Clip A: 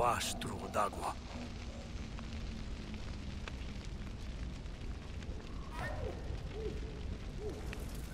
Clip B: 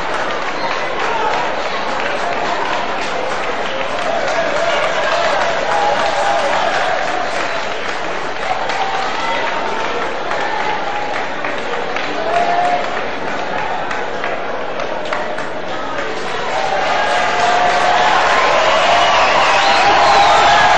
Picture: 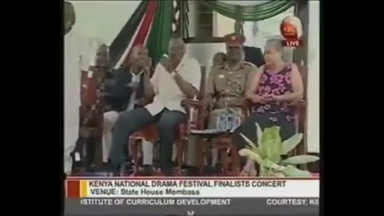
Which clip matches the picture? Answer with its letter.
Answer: B